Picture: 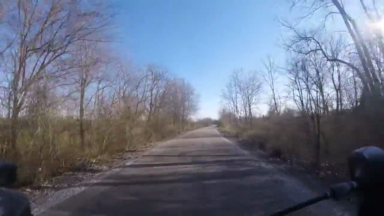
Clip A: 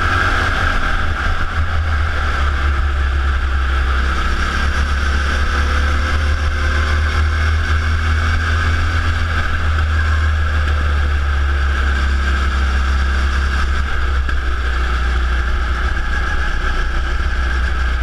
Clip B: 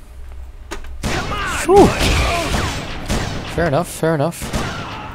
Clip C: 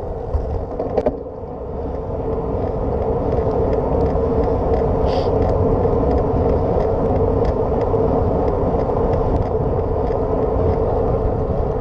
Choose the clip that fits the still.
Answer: C